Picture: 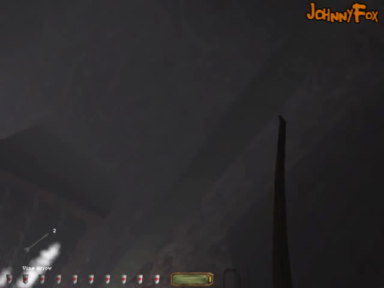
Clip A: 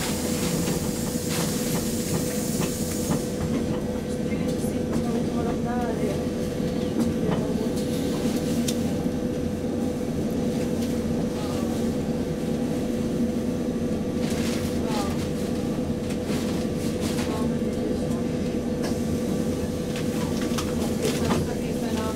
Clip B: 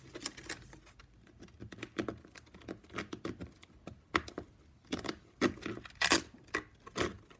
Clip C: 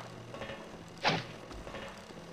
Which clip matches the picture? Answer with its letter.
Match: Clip C